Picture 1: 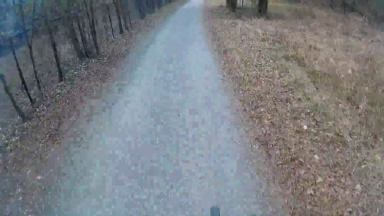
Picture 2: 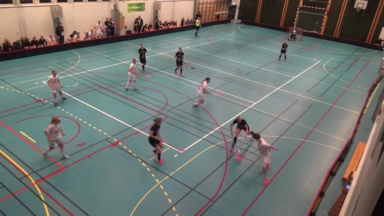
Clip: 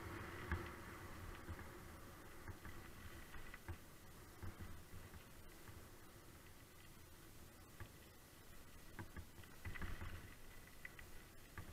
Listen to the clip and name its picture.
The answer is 1